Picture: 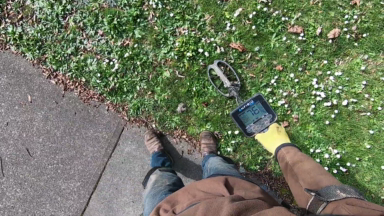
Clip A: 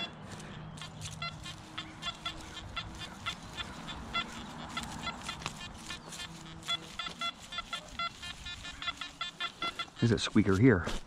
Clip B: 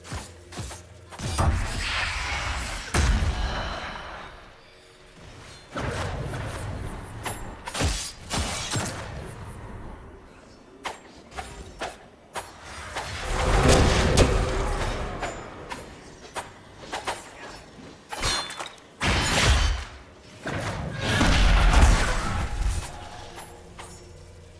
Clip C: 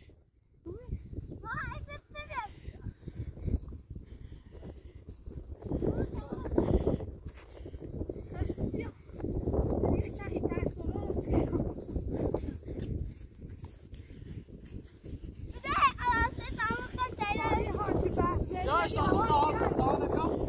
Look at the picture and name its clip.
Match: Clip A